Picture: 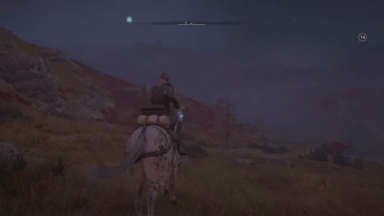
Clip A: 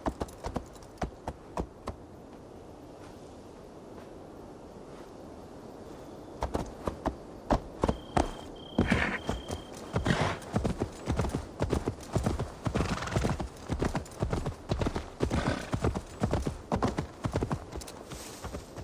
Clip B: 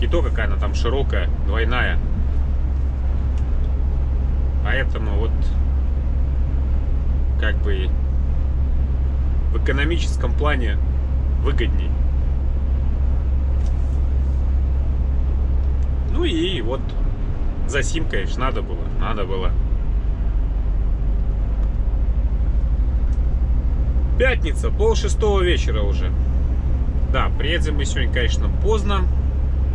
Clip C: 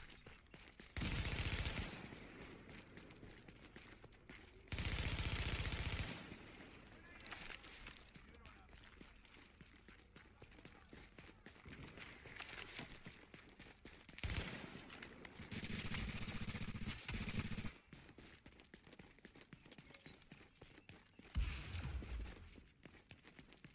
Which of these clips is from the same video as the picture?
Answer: A